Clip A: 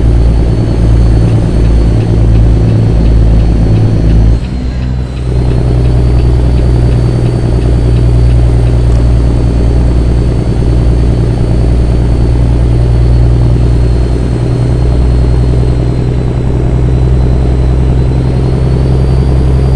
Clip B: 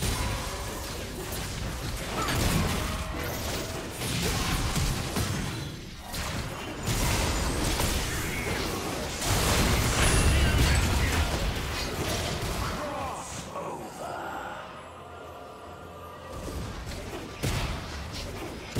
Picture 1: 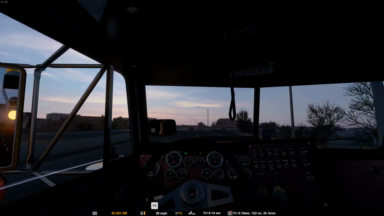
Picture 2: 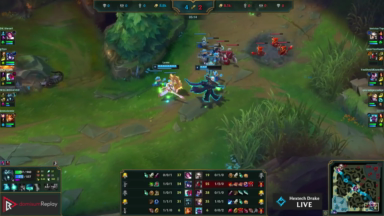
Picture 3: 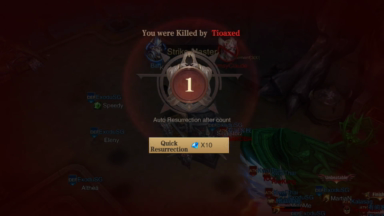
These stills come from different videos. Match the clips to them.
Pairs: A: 1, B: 2